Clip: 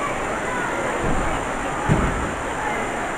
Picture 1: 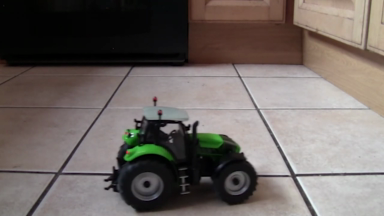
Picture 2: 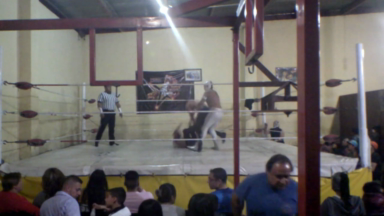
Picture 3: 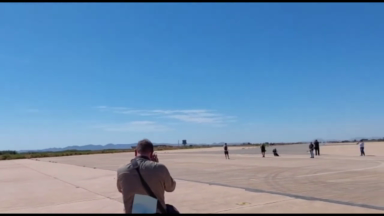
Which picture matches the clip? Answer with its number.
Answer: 2